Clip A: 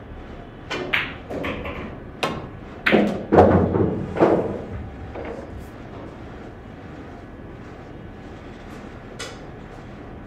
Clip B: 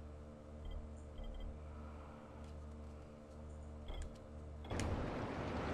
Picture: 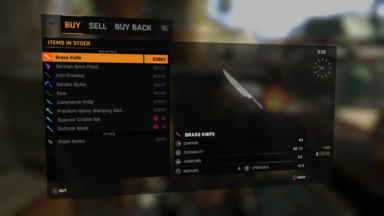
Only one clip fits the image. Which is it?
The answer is B